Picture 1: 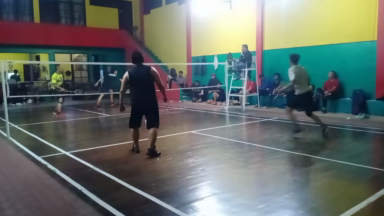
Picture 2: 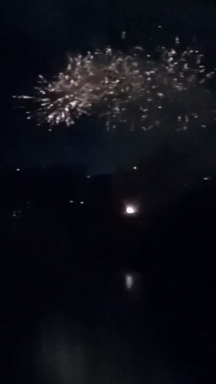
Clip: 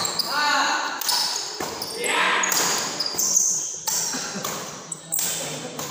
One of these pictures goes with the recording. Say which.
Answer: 1